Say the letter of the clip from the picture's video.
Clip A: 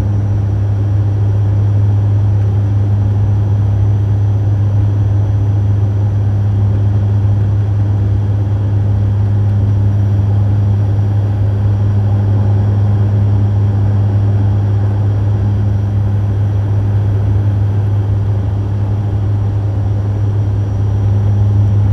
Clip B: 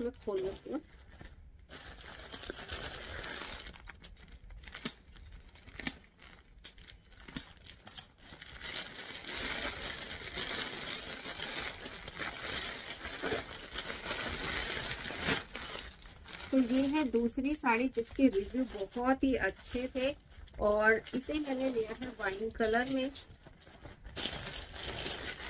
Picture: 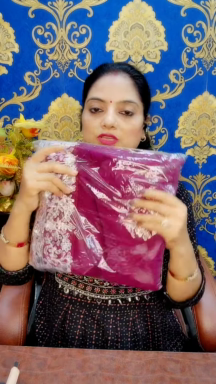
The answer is B